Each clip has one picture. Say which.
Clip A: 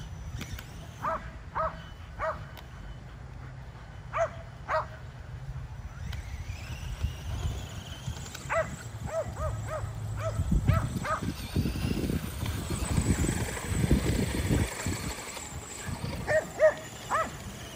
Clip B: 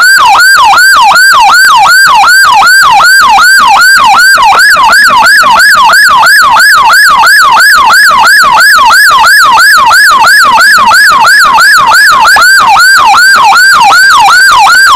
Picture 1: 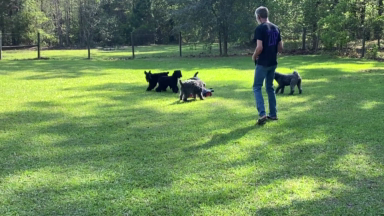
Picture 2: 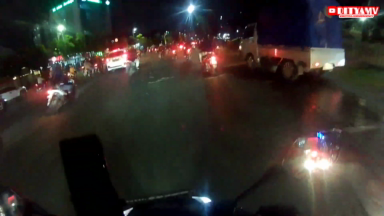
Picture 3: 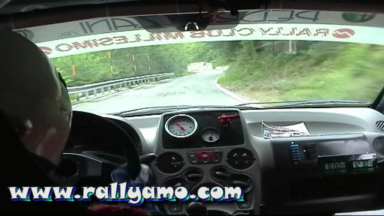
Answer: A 1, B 2